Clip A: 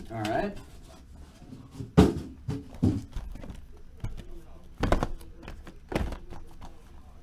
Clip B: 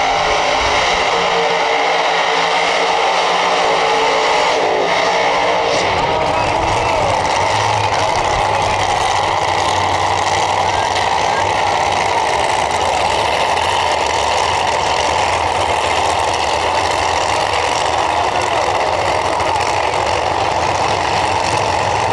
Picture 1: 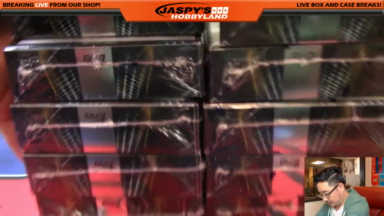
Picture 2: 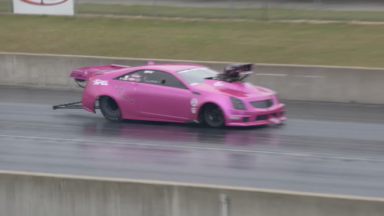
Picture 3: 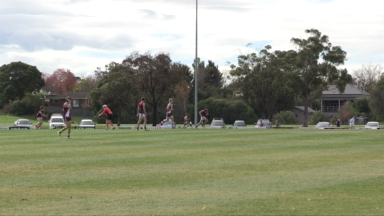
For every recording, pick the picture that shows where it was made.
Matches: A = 1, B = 2